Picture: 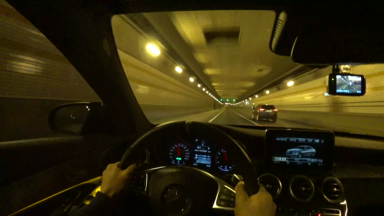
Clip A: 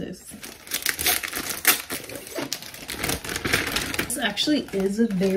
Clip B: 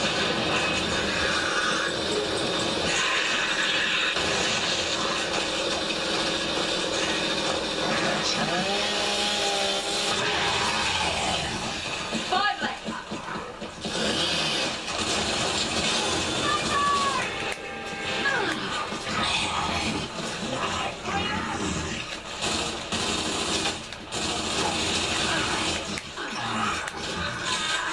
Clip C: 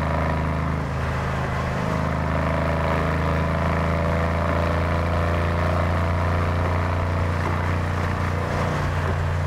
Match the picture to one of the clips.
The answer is C